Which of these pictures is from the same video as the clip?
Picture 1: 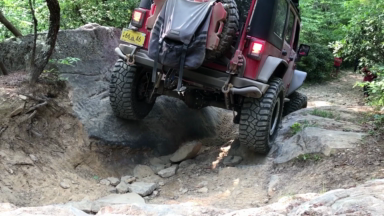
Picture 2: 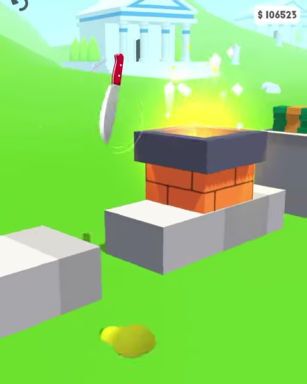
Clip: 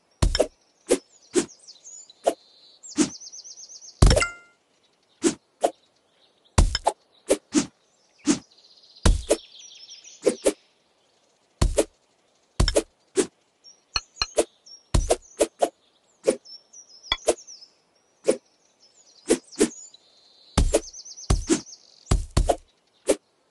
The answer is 2